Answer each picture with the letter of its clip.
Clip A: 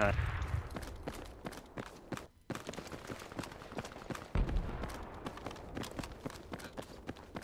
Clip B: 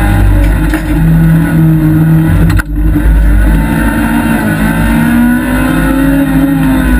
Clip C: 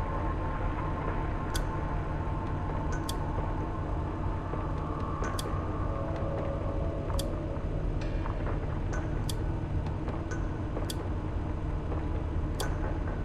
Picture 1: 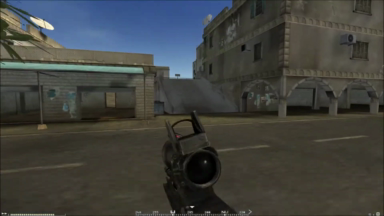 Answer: A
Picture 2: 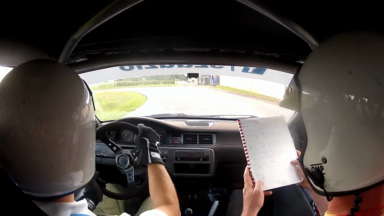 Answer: B